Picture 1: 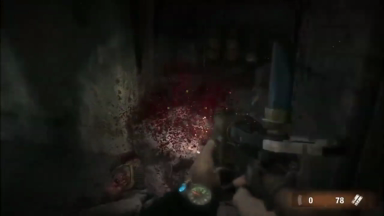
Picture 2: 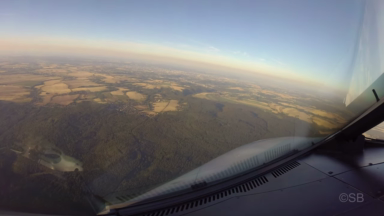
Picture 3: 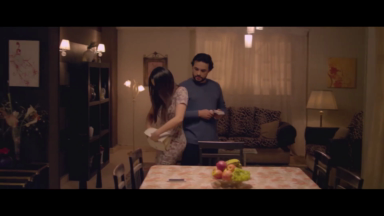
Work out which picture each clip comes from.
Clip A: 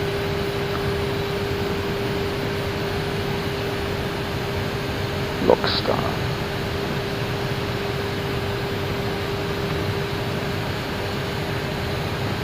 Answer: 2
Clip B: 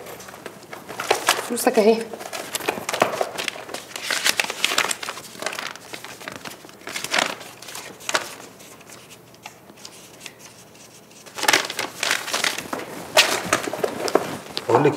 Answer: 3